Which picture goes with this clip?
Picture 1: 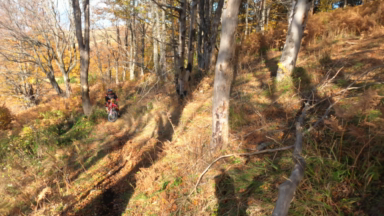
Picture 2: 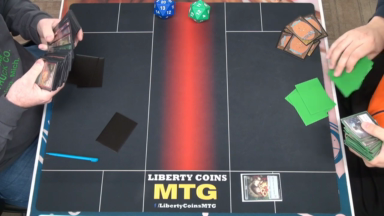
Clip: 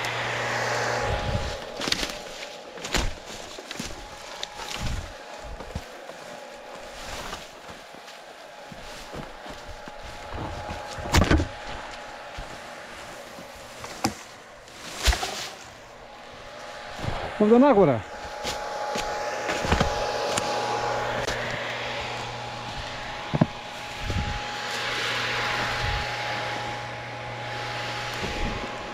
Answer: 1